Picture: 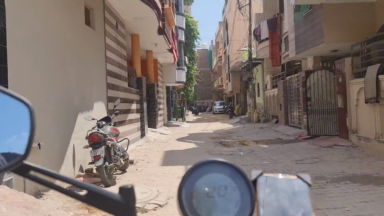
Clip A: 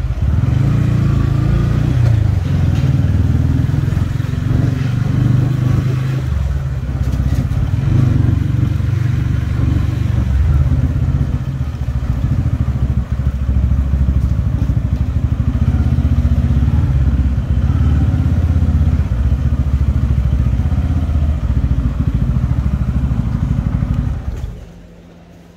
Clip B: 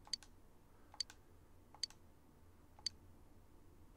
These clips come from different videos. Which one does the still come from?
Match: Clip A